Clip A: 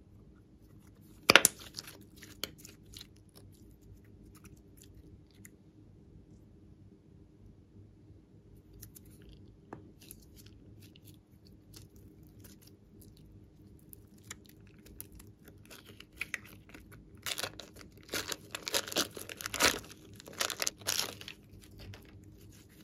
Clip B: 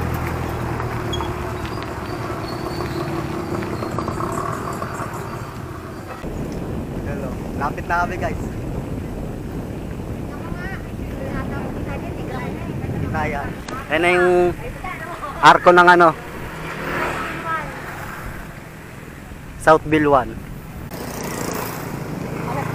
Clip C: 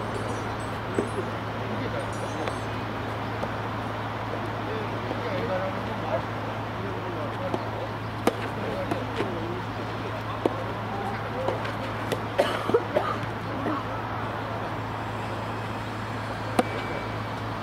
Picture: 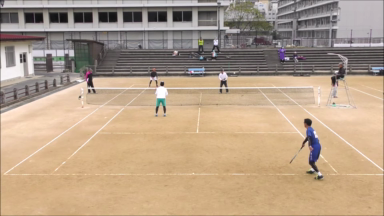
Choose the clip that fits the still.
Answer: C